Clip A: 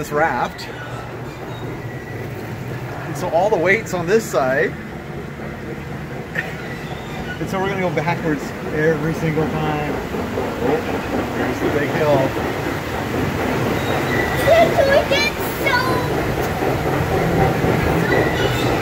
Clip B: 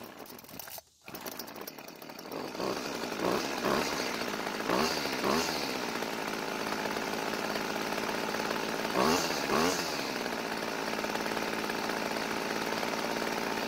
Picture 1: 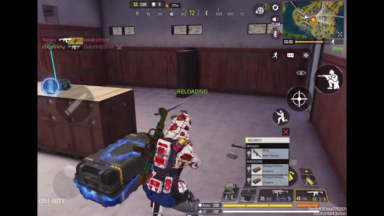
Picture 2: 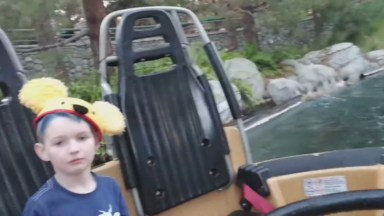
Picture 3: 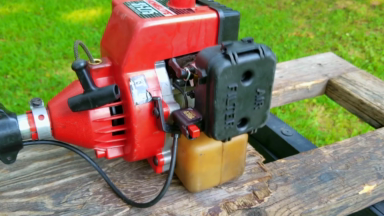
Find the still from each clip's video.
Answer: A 2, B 3